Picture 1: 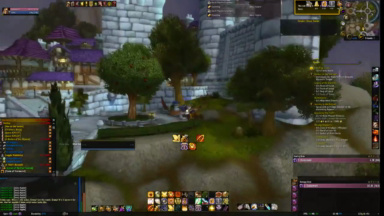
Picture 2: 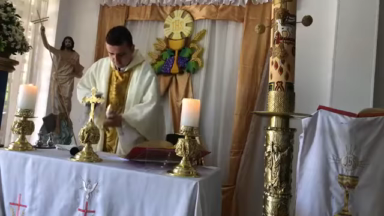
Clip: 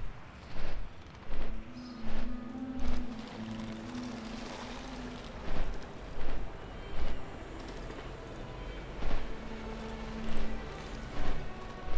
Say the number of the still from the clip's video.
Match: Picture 1